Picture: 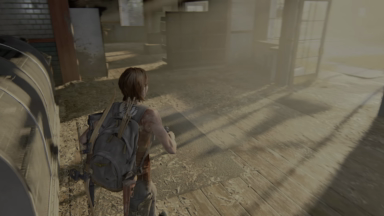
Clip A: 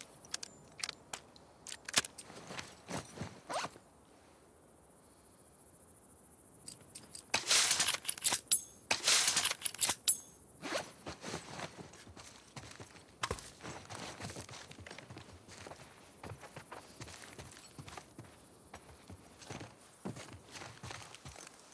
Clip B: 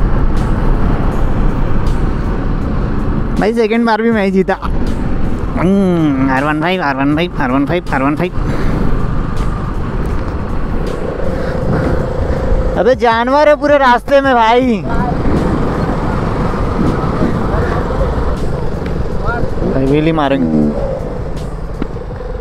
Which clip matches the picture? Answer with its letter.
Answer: A